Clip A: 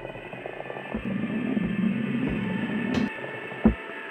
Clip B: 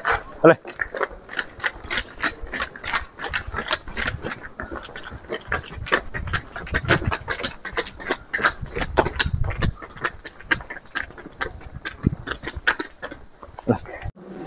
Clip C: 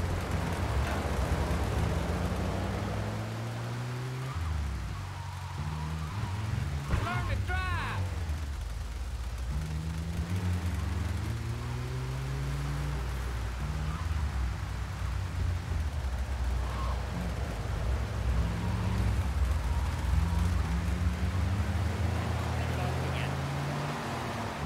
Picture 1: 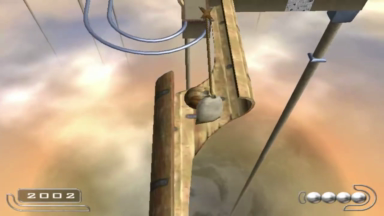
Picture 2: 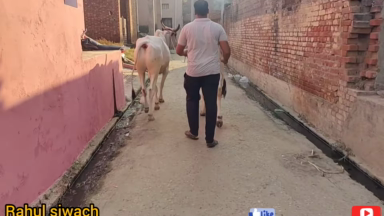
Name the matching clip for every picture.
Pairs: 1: A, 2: B